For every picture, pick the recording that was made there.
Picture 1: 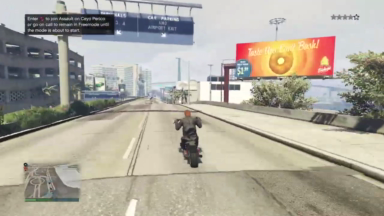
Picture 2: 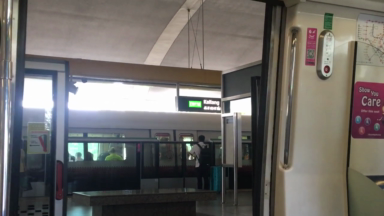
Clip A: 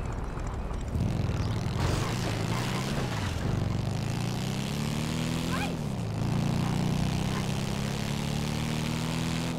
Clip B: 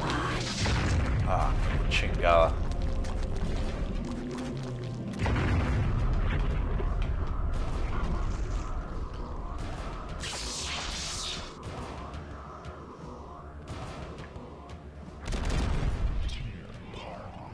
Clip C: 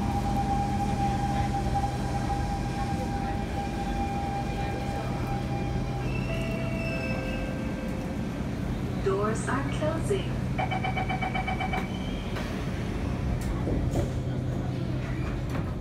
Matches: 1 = A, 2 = C